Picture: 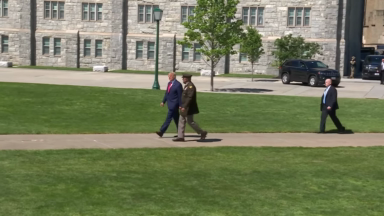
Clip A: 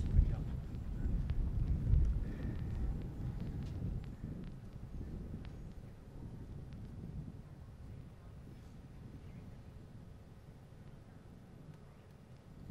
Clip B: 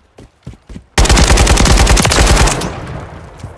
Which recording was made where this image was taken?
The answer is A